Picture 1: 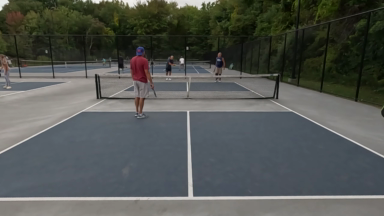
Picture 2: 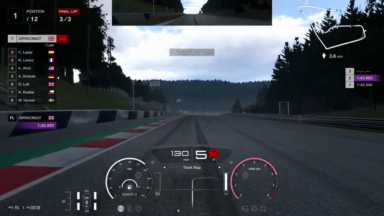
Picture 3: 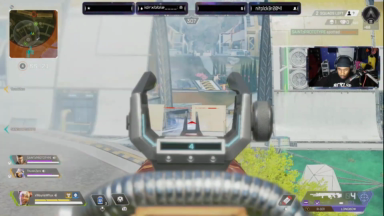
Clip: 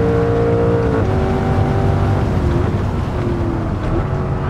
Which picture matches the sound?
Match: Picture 2